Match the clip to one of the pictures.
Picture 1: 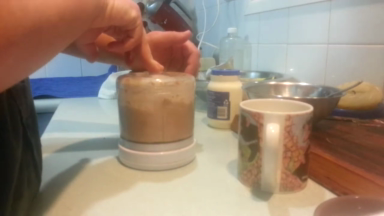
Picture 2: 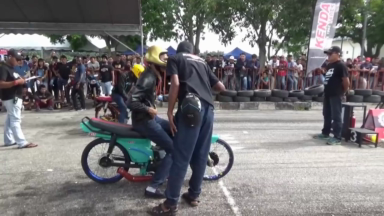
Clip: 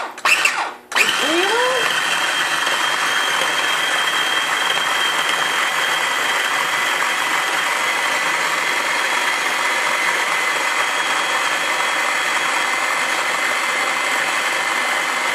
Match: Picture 1